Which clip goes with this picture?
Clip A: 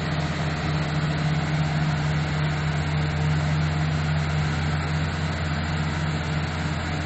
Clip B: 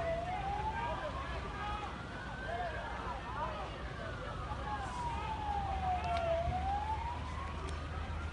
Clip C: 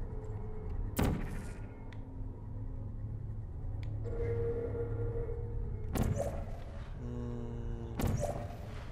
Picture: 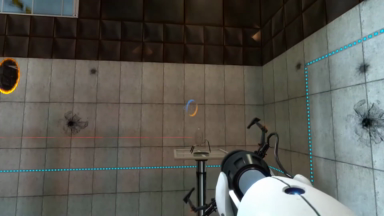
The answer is C